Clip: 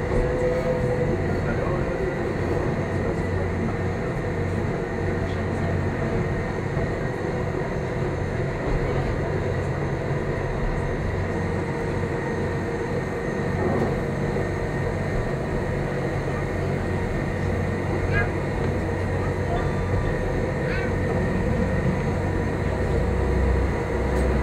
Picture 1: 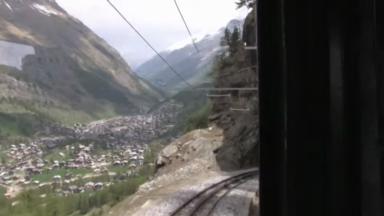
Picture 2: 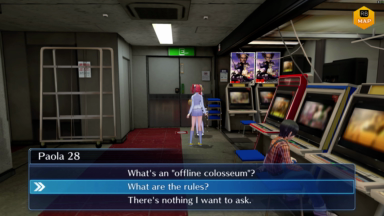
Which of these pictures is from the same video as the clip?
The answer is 1